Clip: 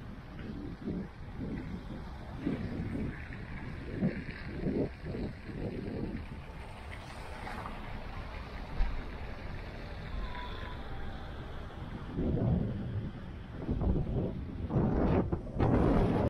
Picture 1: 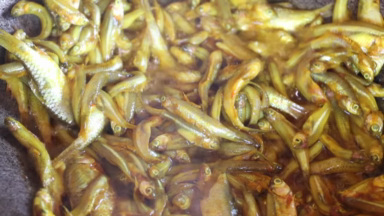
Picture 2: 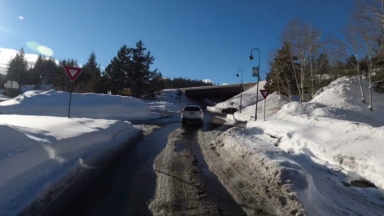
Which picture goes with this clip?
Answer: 2